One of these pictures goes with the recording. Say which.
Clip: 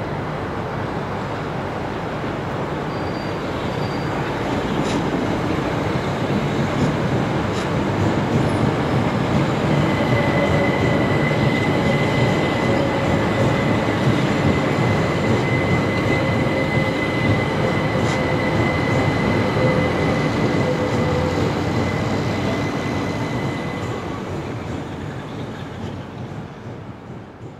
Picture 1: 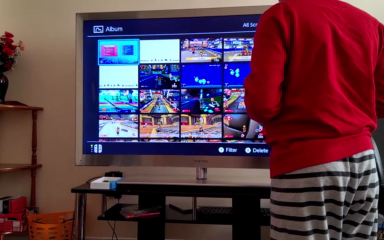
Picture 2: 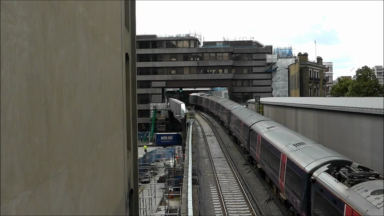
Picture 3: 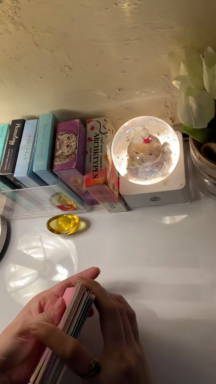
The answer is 2